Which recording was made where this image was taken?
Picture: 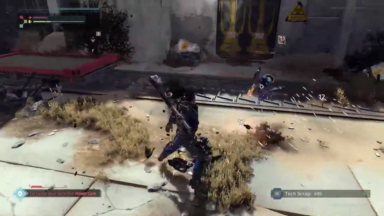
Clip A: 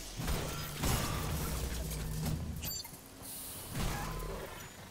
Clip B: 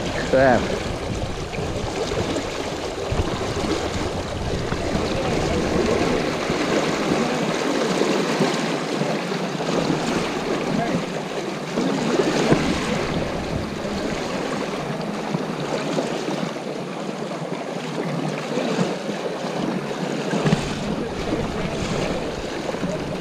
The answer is A